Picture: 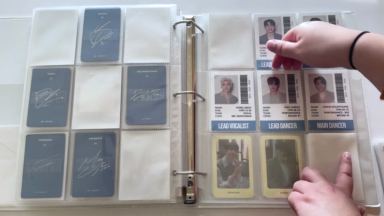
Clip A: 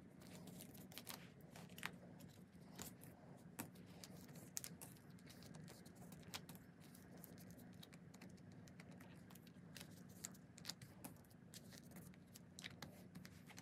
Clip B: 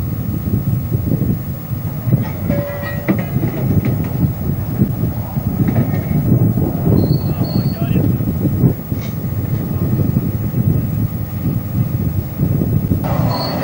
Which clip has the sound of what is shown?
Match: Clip A